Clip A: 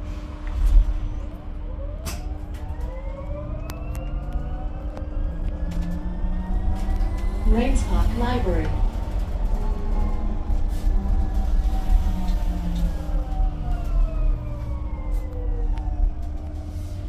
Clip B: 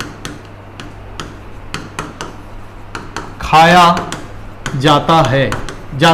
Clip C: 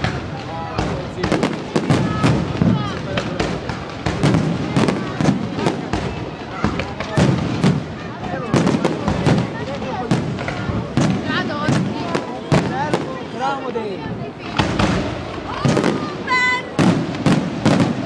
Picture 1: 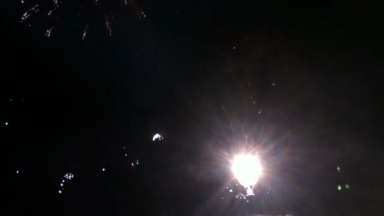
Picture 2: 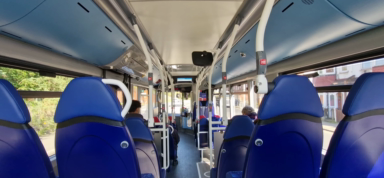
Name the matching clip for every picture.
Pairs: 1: C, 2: A